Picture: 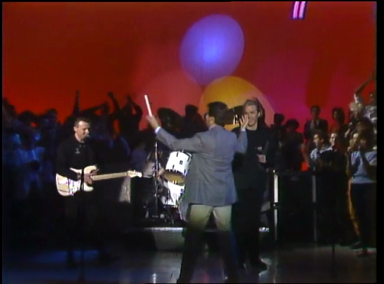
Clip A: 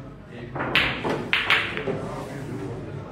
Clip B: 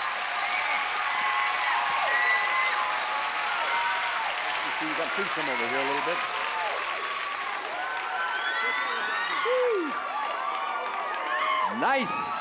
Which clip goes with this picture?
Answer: B